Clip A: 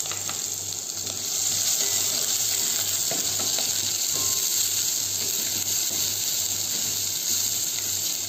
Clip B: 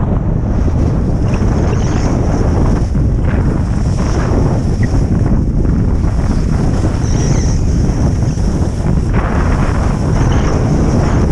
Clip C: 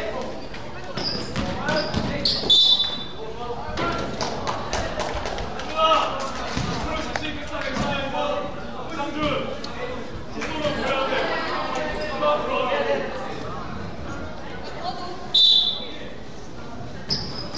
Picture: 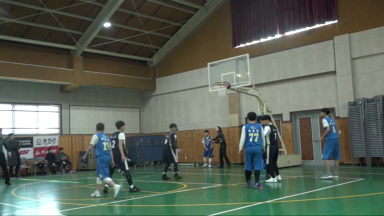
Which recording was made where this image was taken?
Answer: C